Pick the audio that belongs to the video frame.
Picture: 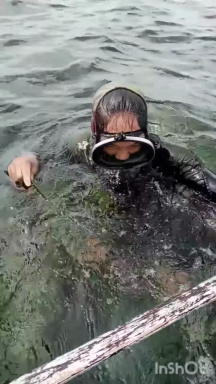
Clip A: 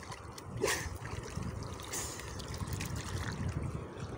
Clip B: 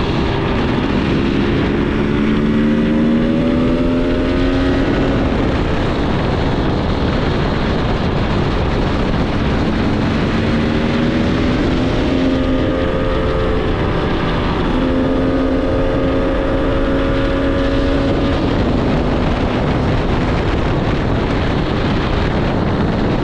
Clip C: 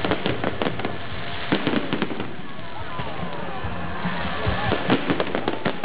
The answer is A